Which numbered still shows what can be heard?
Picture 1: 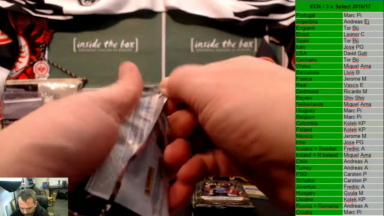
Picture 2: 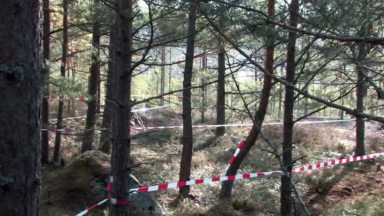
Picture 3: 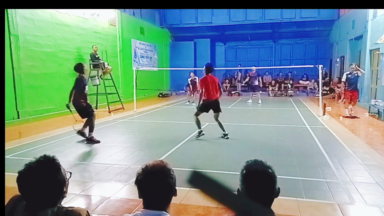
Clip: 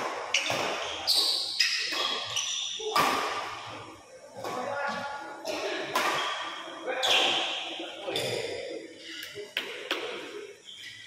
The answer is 3